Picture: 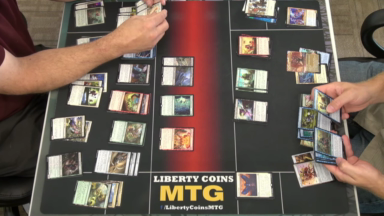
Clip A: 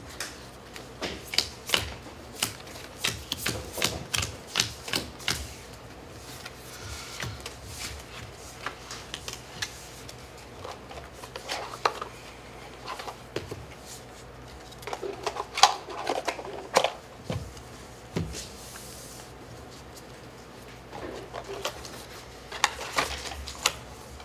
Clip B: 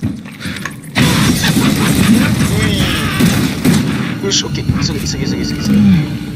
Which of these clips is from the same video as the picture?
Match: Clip A